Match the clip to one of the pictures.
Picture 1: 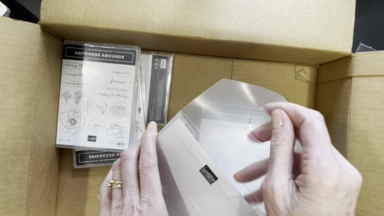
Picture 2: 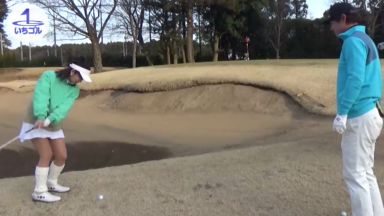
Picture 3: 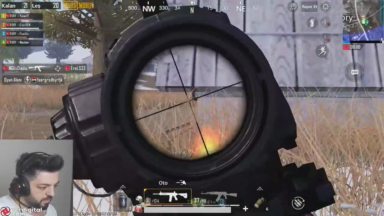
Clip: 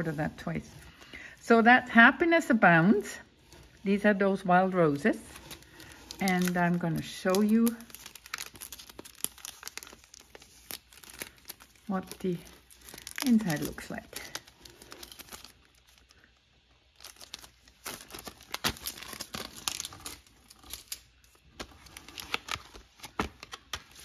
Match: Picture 1